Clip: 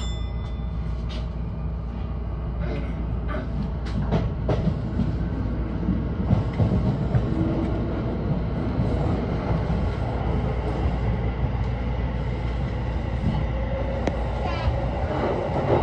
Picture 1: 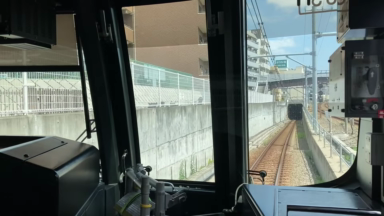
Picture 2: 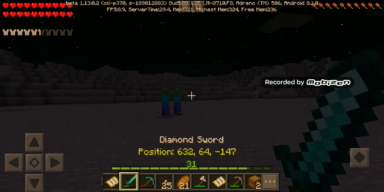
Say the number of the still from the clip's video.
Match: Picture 1